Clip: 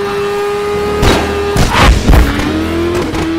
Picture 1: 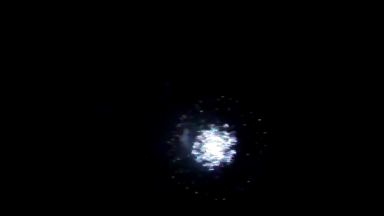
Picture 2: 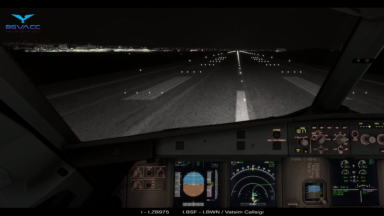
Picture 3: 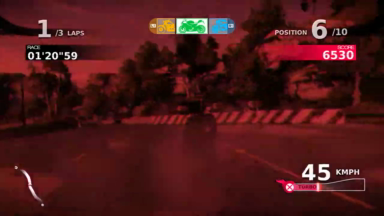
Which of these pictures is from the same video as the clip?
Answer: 3